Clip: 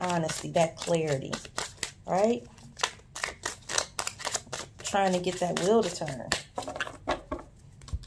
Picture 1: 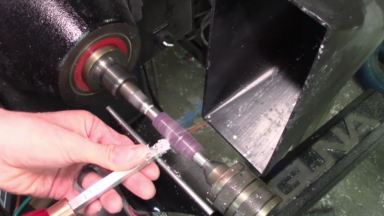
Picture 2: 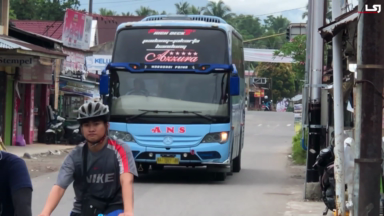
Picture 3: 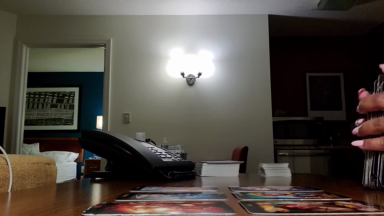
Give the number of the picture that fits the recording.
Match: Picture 3